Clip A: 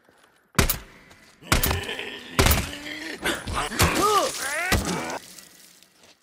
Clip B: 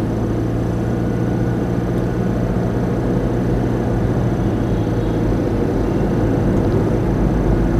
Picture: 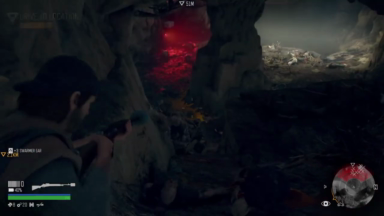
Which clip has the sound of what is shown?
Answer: A